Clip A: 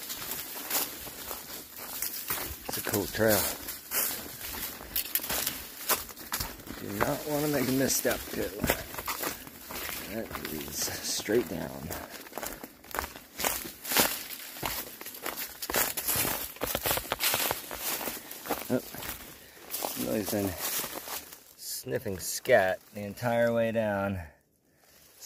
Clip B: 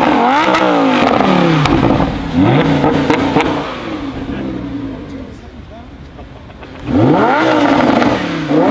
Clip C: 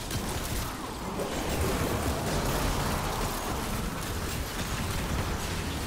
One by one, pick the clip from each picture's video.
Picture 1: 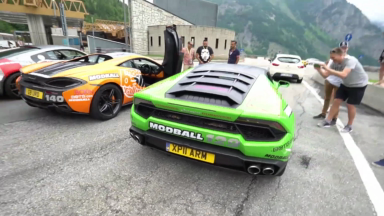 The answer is B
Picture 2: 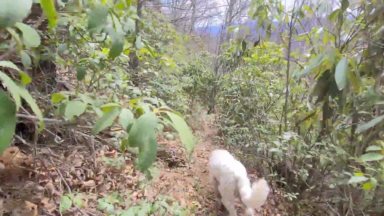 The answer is A